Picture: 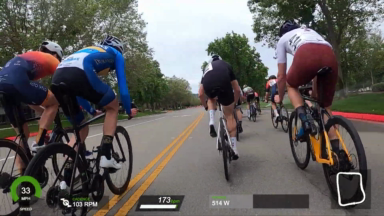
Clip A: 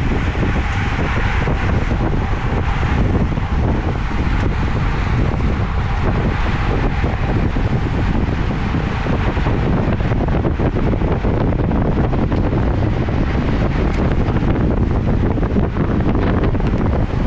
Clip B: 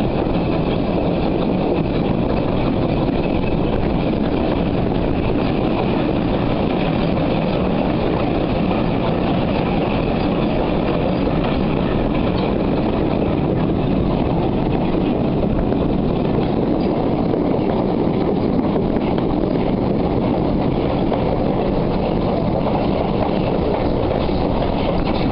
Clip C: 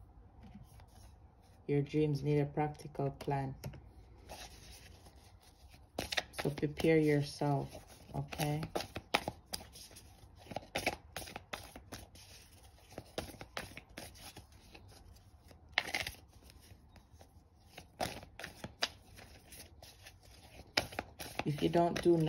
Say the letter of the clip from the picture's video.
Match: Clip A